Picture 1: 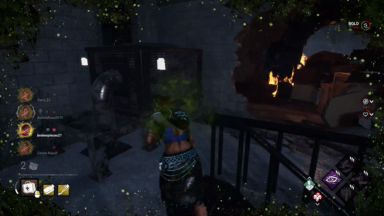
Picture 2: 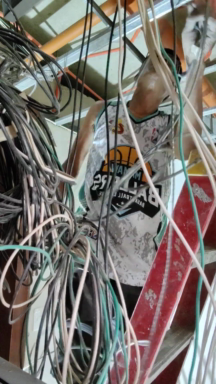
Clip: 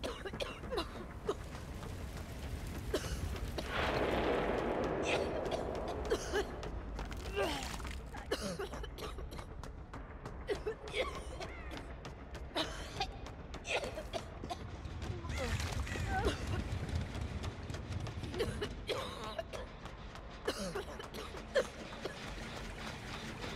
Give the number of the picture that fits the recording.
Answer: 1